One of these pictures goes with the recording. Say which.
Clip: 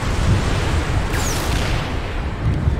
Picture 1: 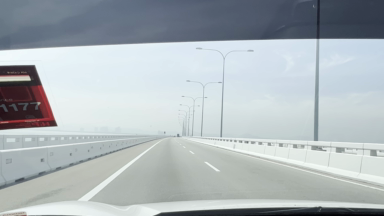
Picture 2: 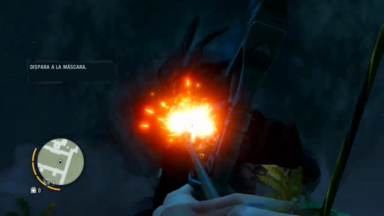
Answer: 2